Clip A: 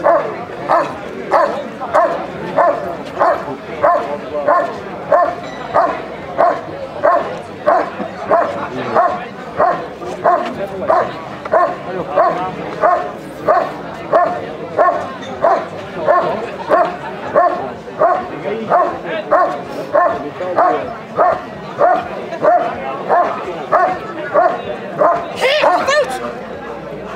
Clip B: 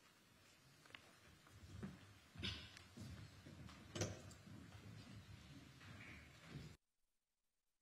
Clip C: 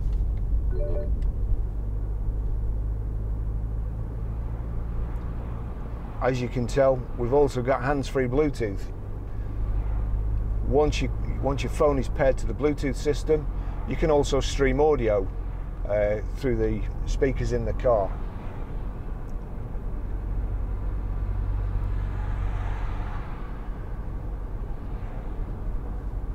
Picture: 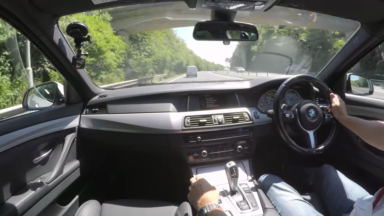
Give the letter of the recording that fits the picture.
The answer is C